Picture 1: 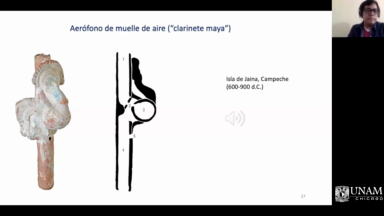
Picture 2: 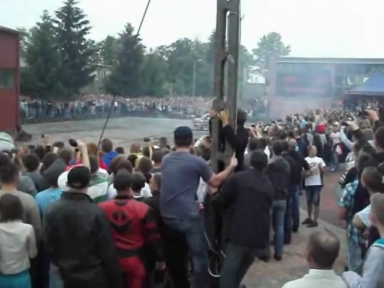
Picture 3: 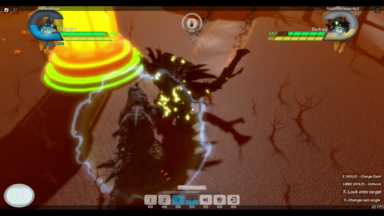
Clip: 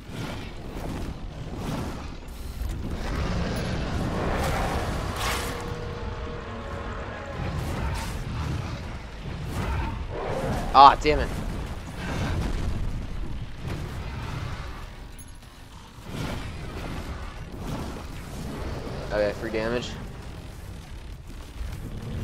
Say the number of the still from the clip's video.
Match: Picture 3